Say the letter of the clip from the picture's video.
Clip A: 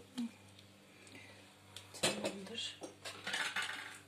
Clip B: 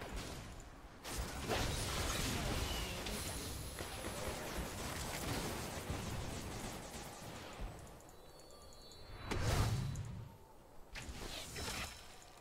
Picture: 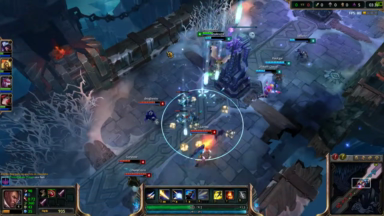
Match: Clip B